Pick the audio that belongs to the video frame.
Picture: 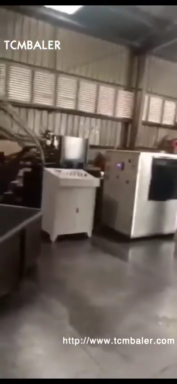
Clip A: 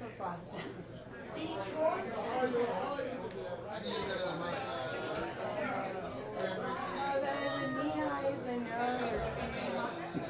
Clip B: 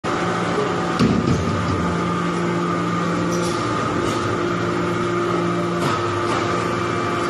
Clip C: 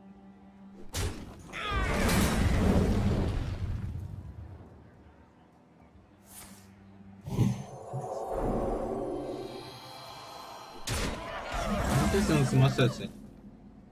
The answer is B